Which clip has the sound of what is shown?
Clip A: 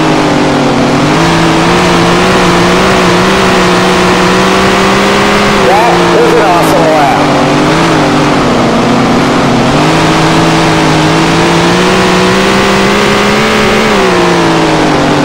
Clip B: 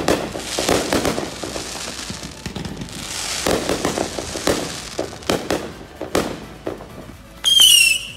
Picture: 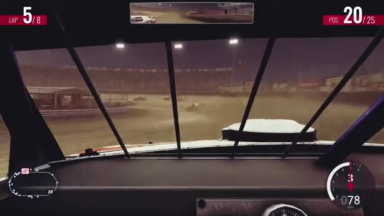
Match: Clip A